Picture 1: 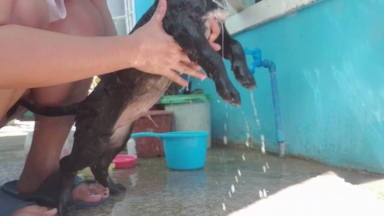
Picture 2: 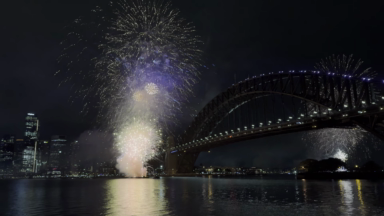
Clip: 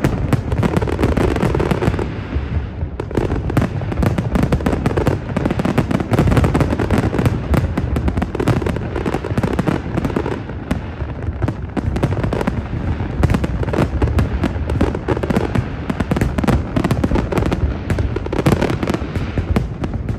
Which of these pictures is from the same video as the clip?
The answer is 2